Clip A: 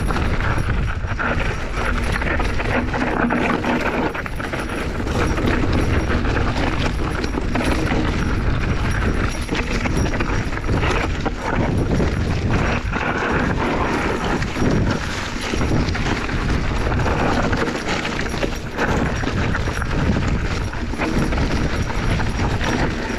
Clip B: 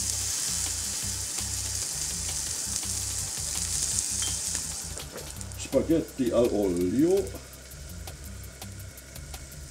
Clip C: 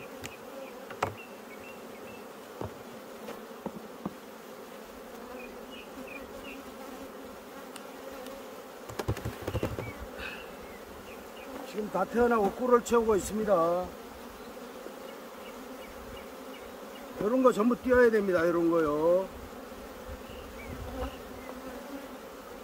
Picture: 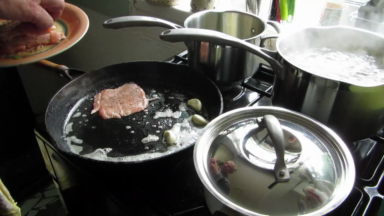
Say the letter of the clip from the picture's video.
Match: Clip B